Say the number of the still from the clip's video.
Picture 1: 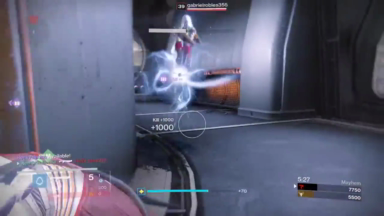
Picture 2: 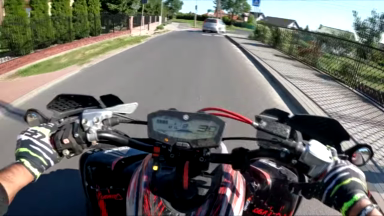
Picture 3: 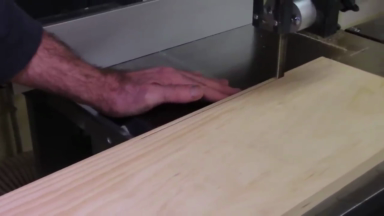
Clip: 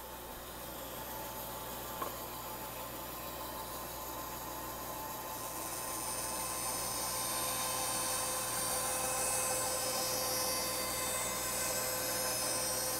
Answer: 3